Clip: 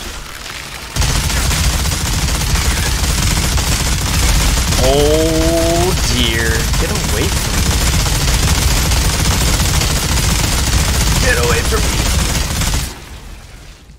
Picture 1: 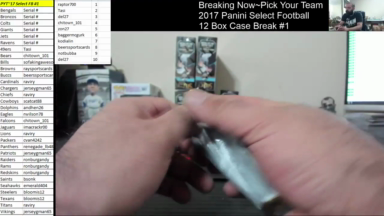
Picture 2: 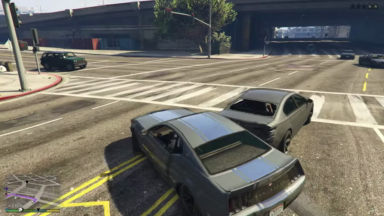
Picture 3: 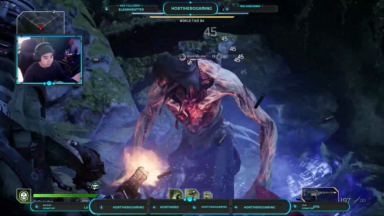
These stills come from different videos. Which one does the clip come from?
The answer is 3